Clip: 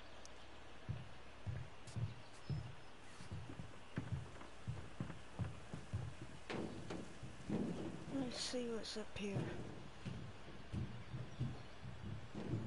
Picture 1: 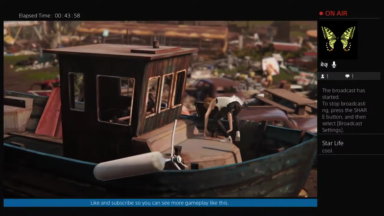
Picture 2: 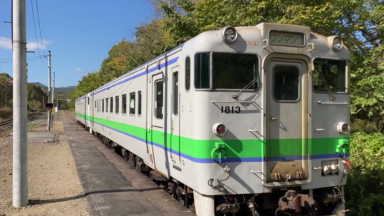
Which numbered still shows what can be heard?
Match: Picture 1